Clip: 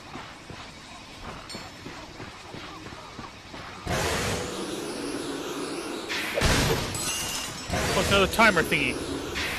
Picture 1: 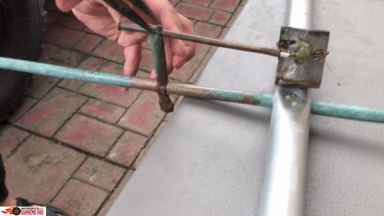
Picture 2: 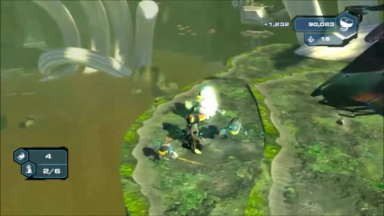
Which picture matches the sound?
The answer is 2